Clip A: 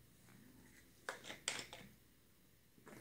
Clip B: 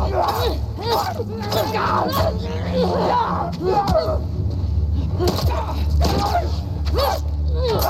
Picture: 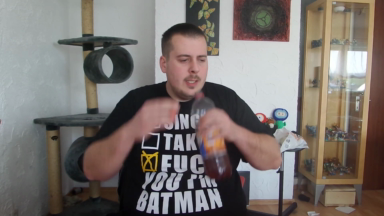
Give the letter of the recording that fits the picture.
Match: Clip A